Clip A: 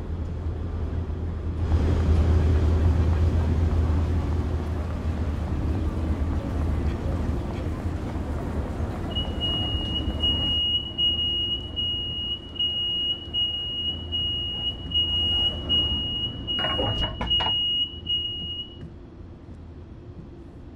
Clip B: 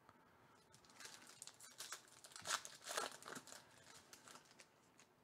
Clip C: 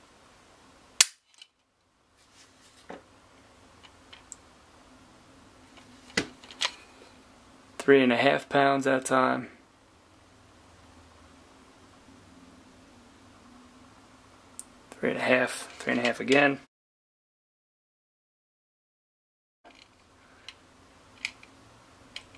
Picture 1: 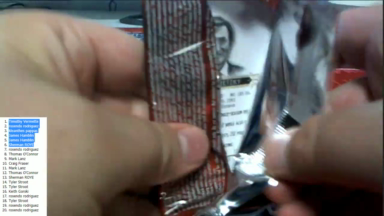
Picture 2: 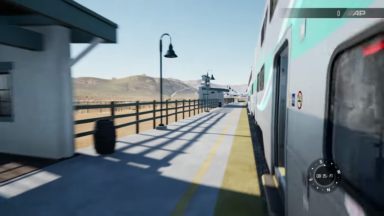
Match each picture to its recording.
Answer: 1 B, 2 A